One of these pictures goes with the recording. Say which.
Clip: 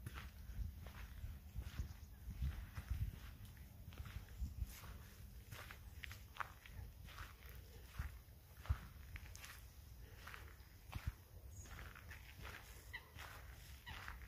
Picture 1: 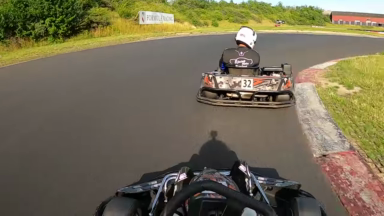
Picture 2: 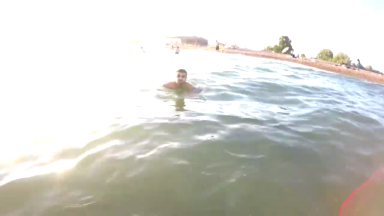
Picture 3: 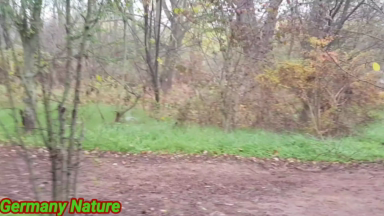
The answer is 3